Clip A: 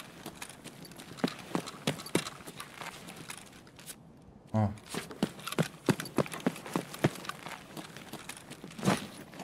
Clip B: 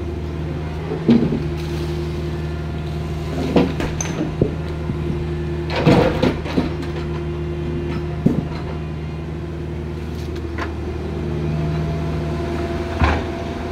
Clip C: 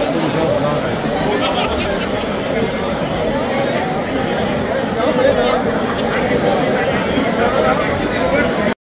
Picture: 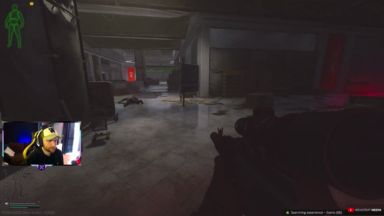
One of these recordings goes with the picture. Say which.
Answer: A